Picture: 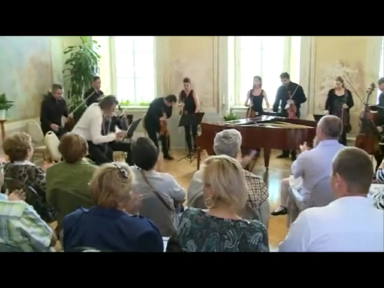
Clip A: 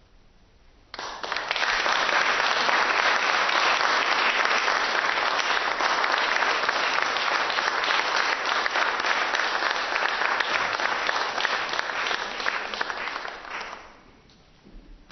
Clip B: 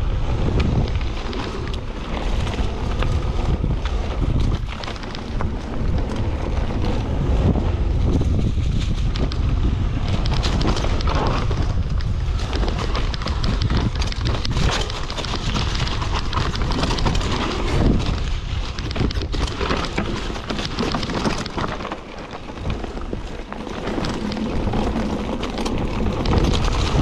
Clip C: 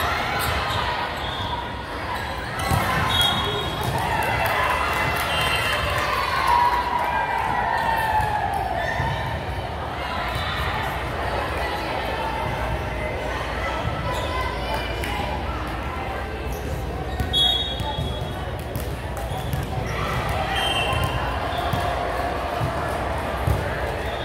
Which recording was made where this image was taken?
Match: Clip A